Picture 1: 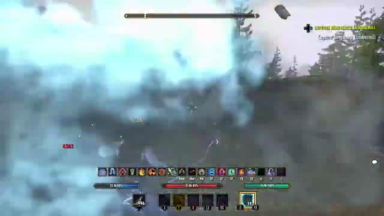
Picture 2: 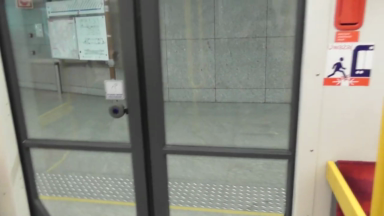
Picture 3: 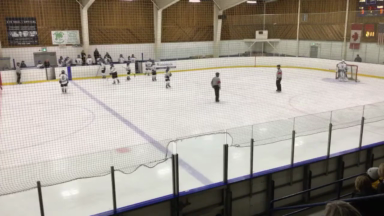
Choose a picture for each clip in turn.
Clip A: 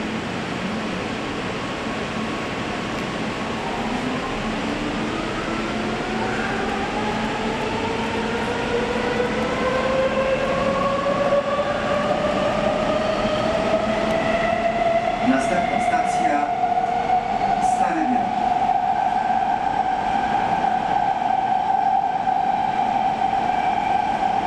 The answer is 2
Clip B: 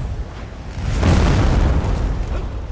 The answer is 1